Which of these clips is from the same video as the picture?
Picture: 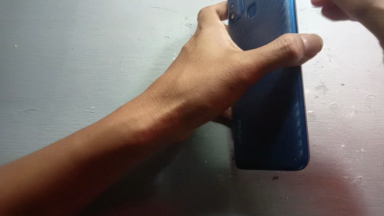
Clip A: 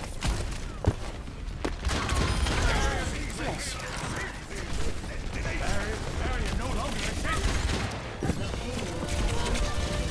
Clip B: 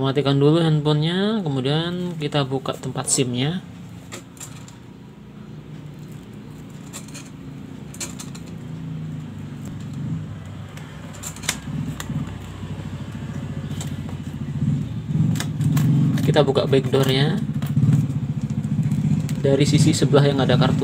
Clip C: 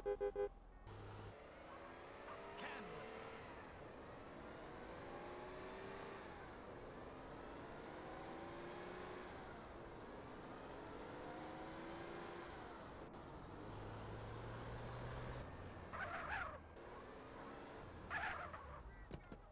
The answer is B